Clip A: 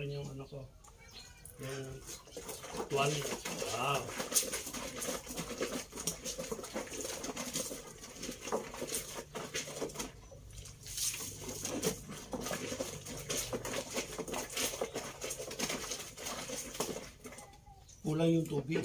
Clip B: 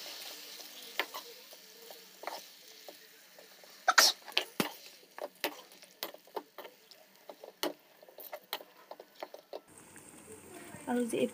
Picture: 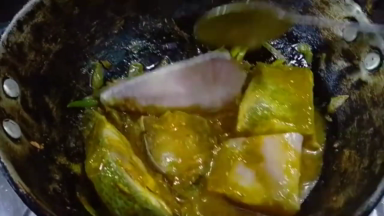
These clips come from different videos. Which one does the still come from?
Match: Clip B